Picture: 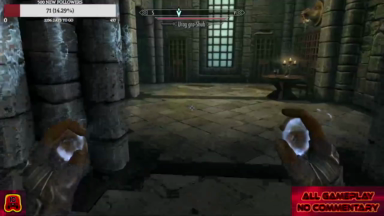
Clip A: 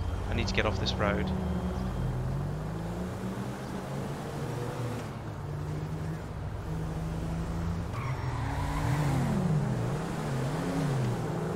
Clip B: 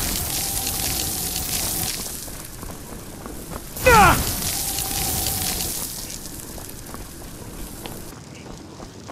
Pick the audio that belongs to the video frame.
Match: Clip B